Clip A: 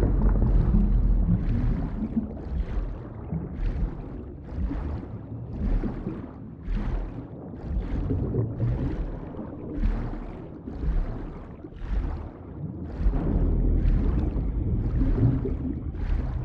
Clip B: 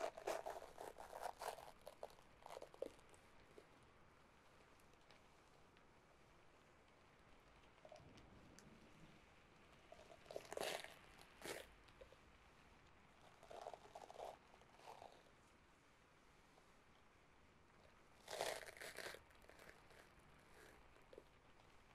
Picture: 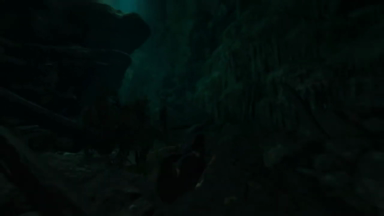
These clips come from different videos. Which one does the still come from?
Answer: A